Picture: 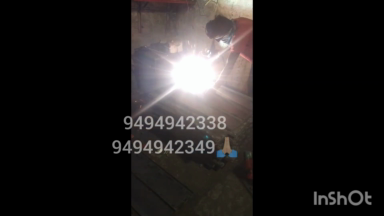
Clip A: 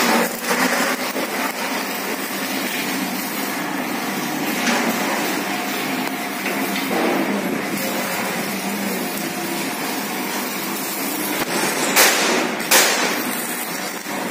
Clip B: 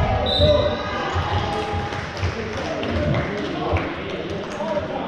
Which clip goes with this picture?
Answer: A